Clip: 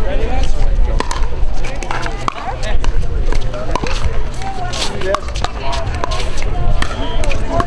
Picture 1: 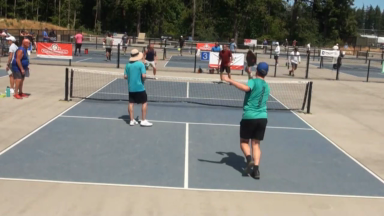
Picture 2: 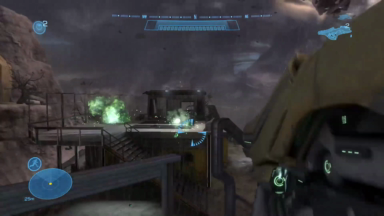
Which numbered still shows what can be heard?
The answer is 1